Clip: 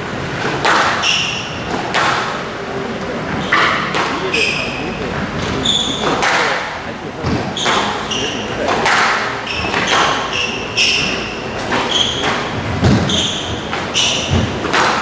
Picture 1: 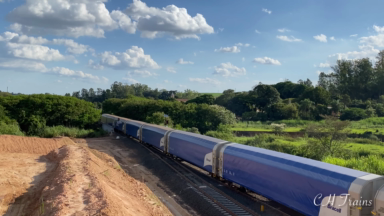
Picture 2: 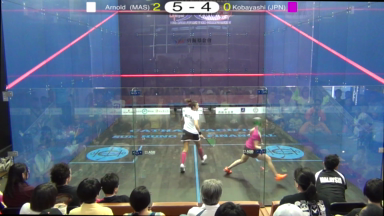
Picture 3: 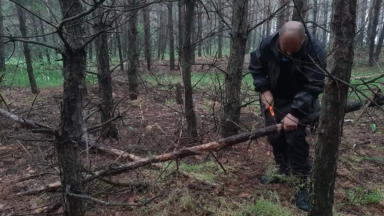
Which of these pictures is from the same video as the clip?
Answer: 2